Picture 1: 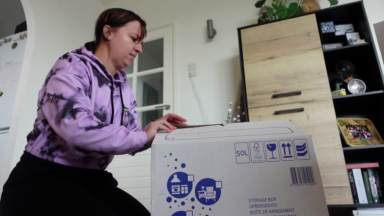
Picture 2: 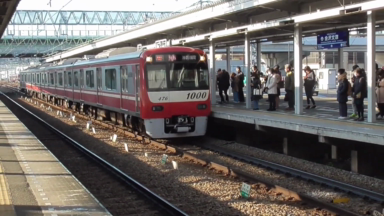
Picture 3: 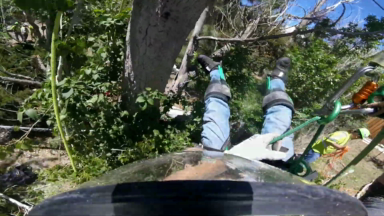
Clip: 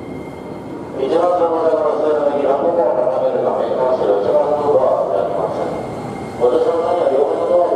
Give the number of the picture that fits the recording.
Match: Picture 2